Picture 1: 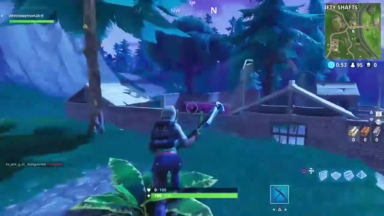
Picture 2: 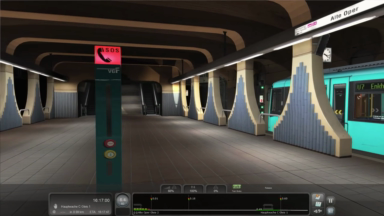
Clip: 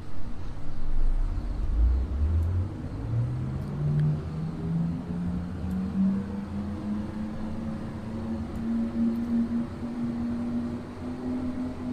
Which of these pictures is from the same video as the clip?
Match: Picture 2